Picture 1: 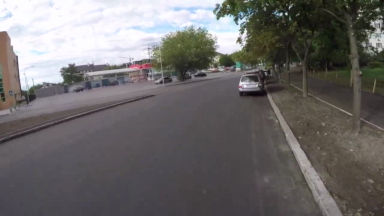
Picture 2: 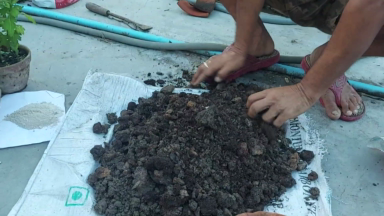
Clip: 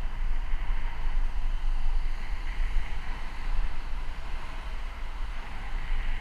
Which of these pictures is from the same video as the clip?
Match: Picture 1